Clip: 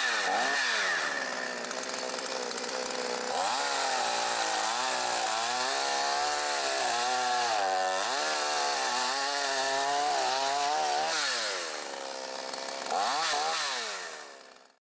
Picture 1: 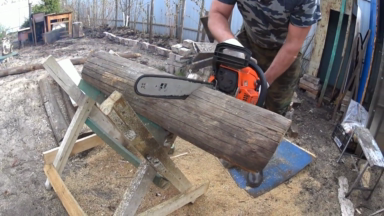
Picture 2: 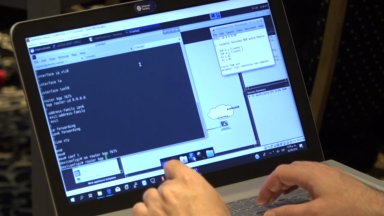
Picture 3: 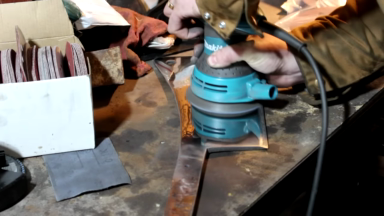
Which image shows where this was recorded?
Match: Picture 1